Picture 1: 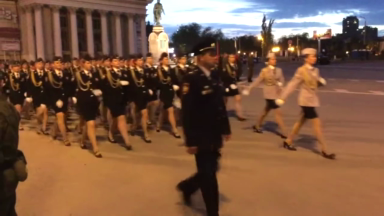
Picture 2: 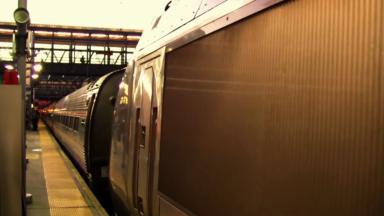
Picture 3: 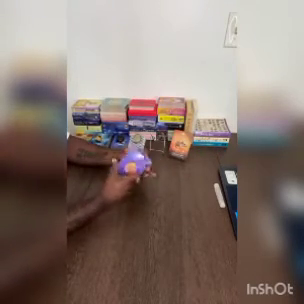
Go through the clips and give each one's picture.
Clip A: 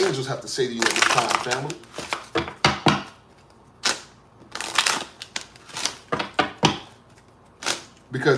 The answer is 3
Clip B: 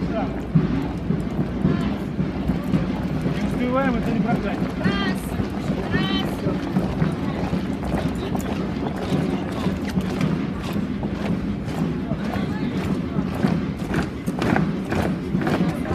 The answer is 1